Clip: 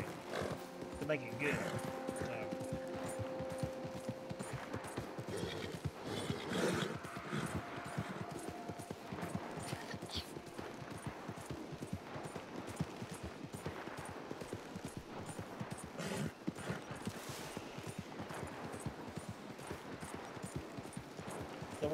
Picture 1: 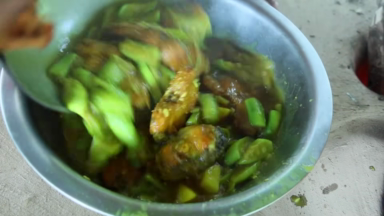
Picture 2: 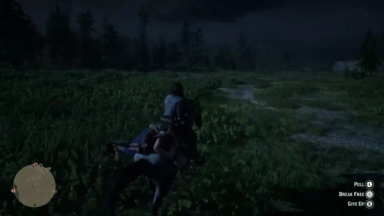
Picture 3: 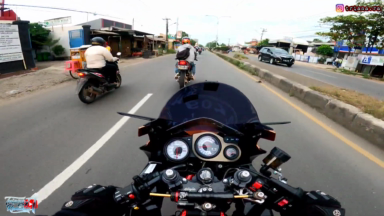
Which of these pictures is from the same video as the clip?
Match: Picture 2